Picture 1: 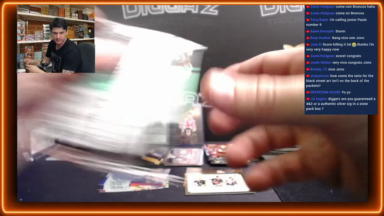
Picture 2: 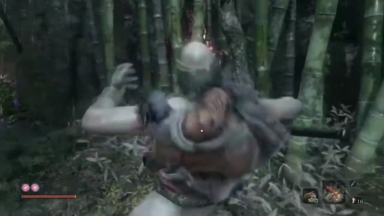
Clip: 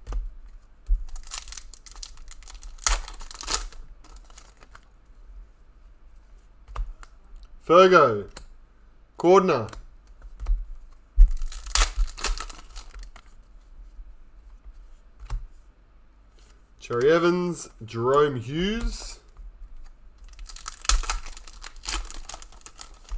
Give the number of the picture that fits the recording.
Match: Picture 1